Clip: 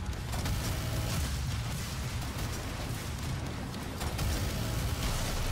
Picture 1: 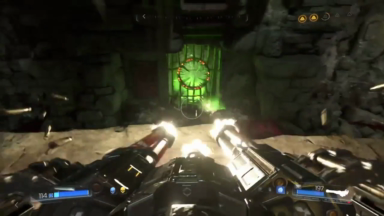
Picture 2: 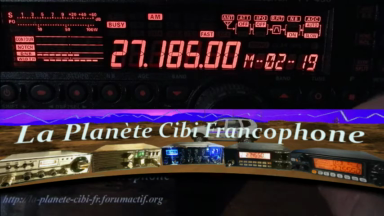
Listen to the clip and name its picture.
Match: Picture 1